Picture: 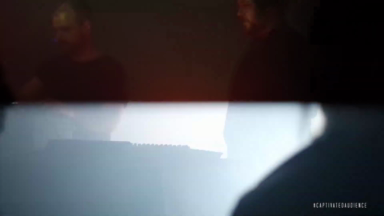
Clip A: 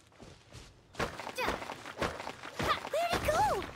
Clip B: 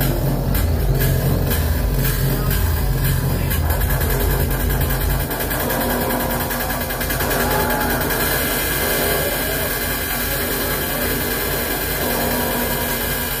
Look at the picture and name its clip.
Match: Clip B